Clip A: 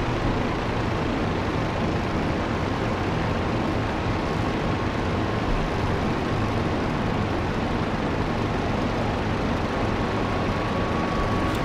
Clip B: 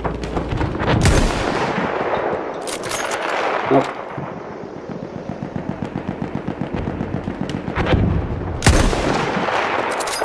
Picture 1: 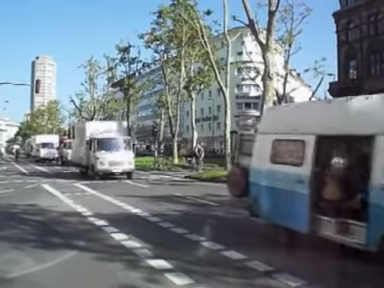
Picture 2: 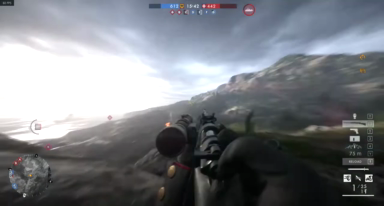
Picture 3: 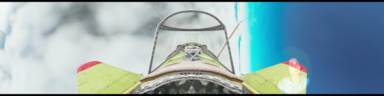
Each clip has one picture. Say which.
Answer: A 3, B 2